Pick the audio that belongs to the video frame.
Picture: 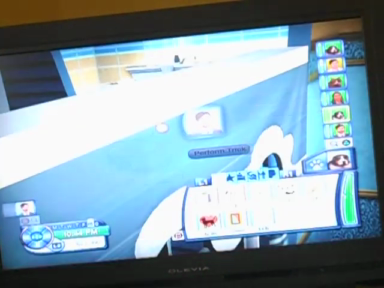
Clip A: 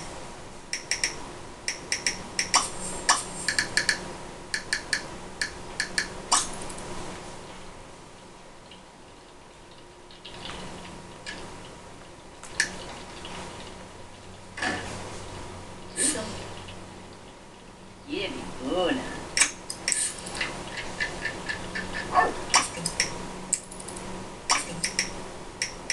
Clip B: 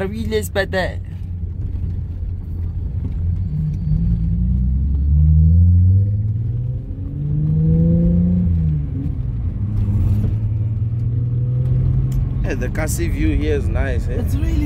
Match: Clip A